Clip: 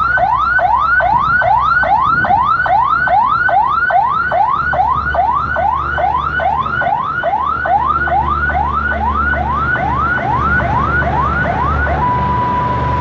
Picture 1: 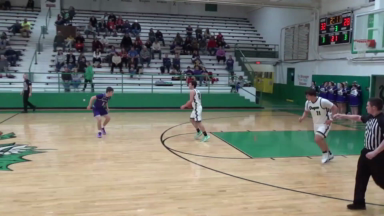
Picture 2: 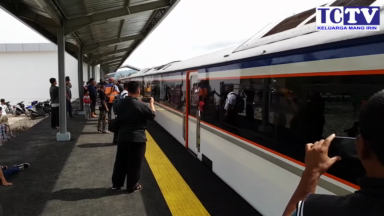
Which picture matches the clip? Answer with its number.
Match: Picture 2